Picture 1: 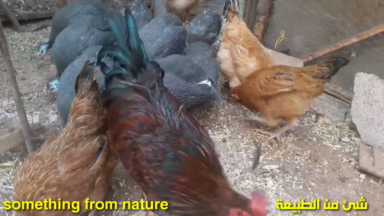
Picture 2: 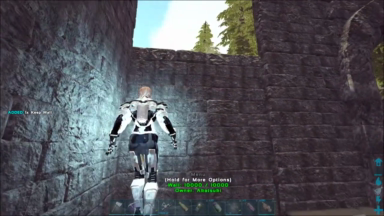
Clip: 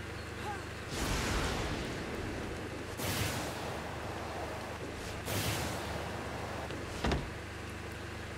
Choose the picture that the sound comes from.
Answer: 2